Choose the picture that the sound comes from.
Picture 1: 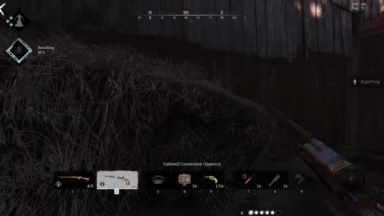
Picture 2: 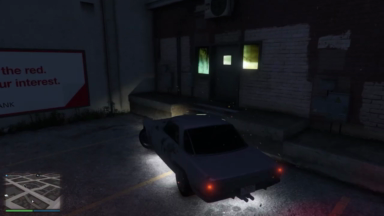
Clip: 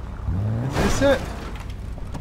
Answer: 2